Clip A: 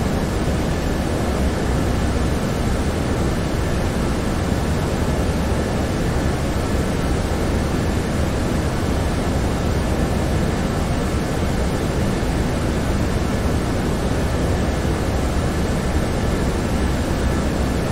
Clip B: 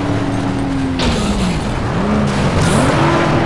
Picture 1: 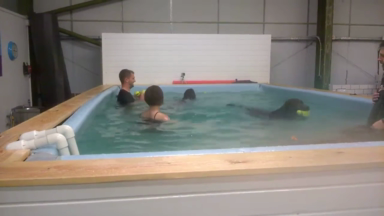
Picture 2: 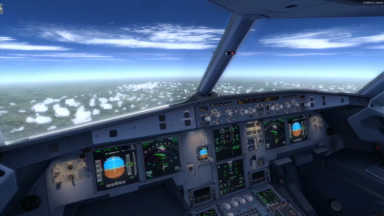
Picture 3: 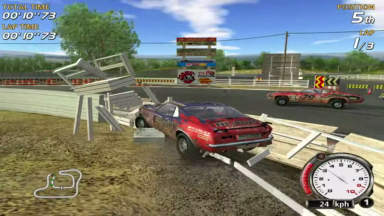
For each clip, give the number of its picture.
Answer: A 2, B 3